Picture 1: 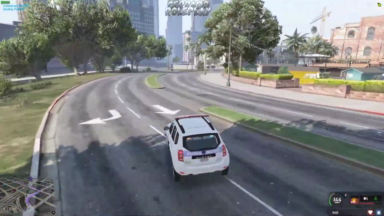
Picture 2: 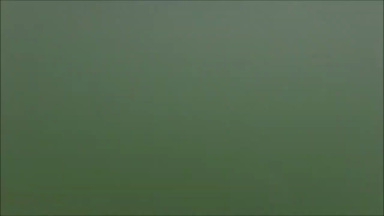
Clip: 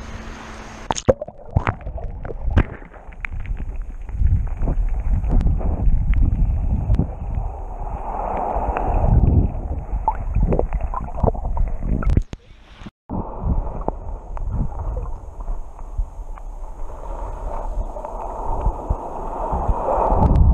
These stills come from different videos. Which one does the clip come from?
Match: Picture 2